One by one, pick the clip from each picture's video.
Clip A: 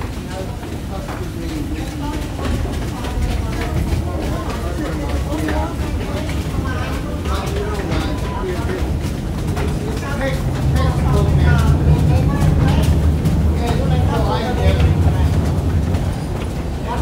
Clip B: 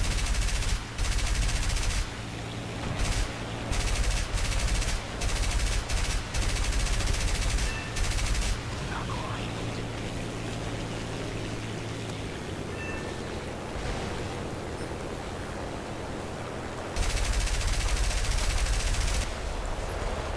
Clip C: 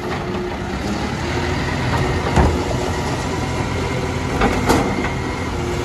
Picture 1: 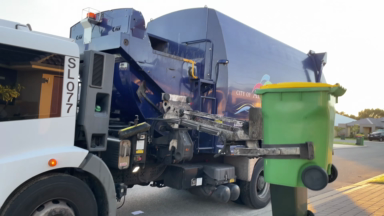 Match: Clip C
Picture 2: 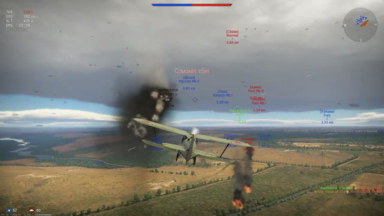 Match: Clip B